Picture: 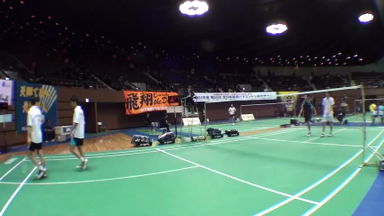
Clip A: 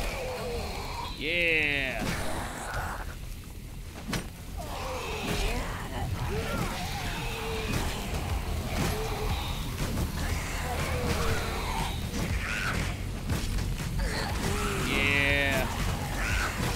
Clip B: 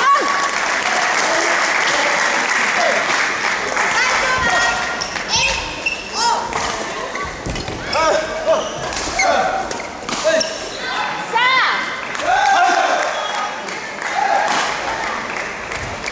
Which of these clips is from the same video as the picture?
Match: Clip B